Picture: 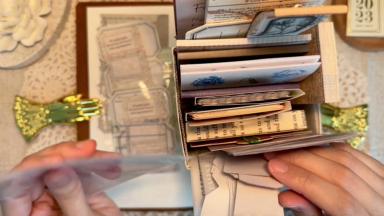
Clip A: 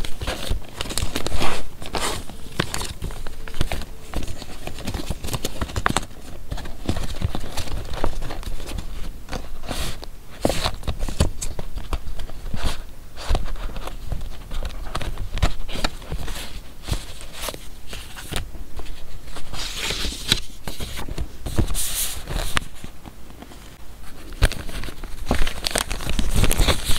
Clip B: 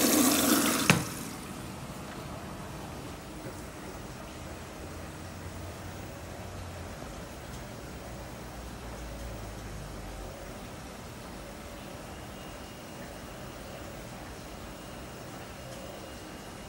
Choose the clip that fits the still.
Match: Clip A